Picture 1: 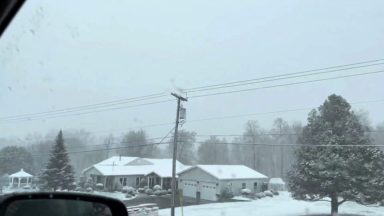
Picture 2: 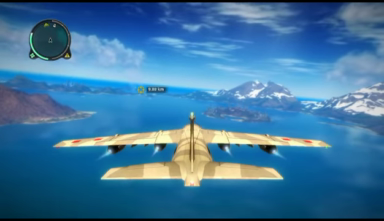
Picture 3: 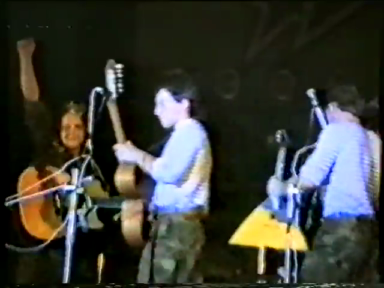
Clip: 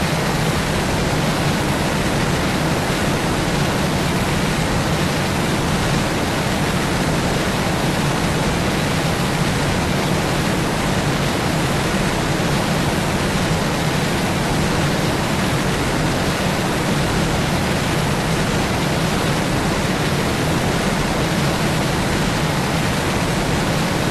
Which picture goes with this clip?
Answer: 2